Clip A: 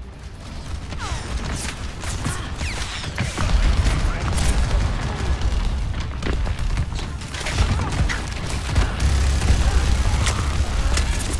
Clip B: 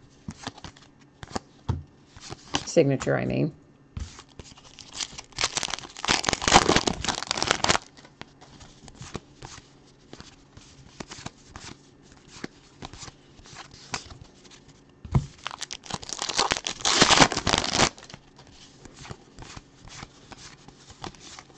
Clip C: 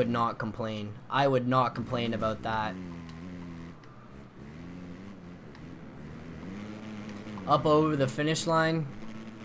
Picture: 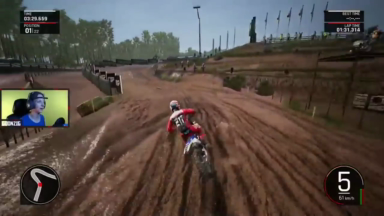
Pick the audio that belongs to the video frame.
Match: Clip C